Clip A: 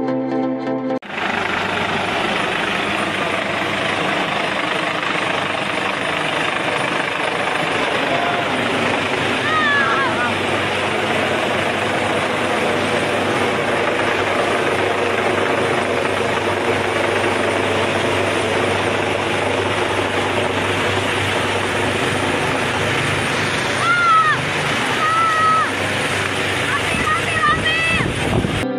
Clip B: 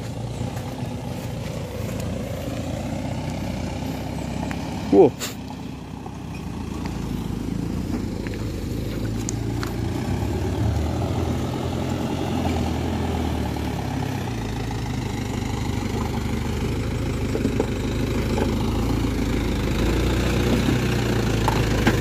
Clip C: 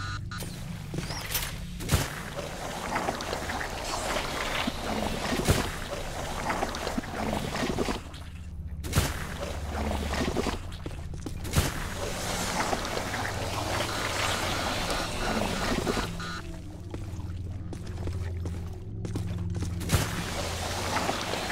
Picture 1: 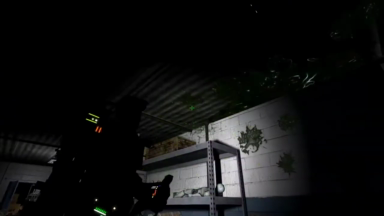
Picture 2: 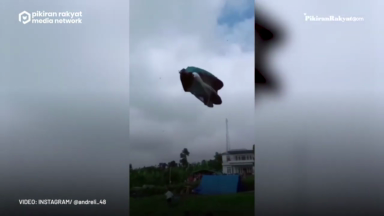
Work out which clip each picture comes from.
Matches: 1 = C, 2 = A